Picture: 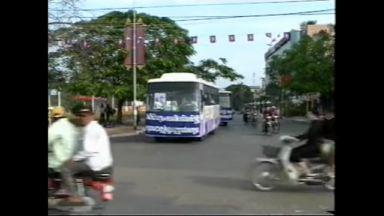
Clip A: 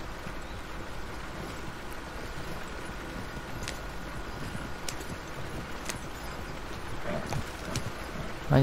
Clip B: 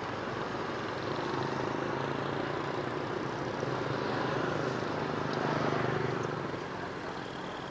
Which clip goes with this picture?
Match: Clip B